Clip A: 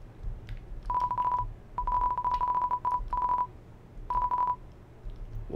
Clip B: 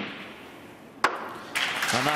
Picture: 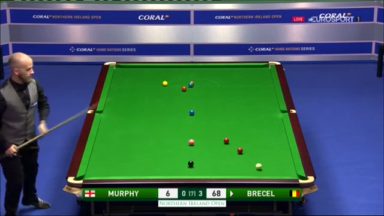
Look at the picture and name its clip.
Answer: B